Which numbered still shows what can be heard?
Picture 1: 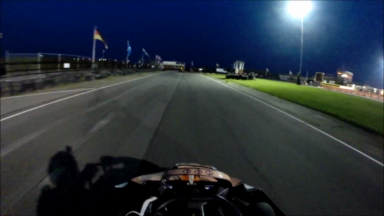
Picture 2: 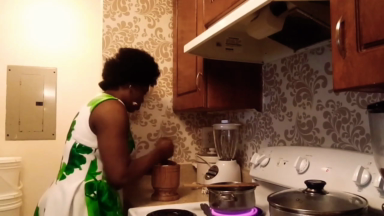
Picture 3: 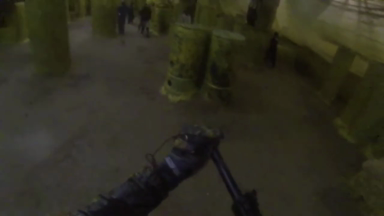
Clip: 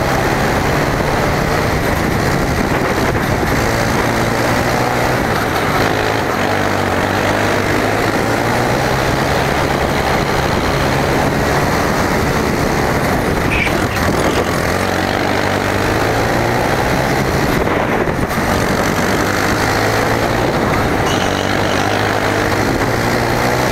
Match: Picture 1